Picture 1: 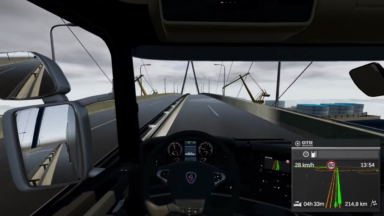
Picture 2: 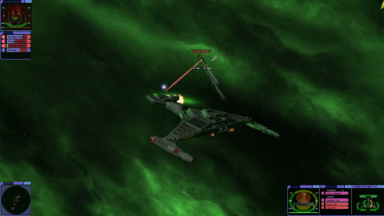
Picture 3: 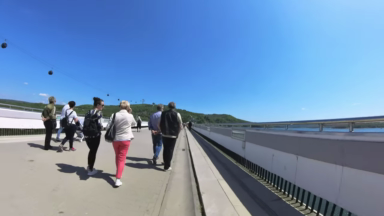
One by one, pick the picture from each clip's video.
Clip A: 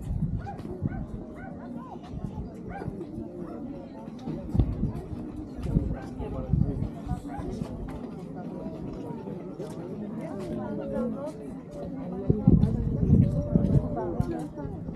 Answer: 3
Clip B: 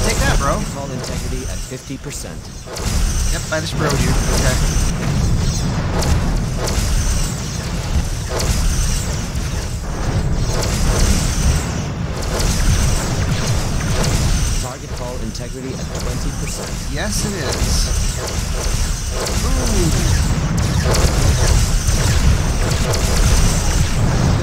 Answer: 2